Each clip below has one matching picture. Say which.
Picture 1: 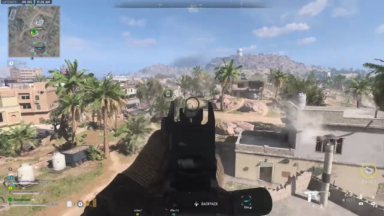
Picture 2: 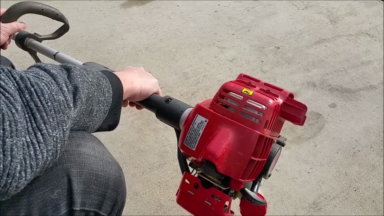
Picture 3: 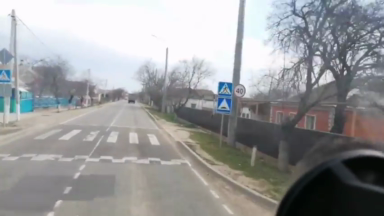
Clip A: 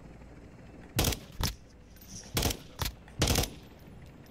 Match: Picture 1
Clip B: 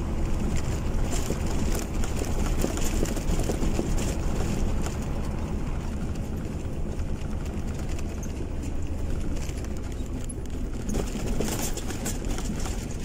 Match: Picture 3